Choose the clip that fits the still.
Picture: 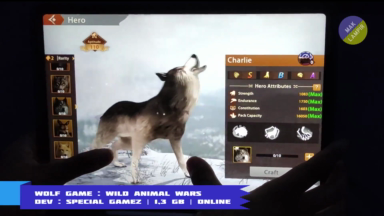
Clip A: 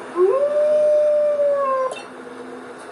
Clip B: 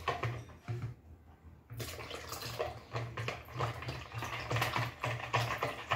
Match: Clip A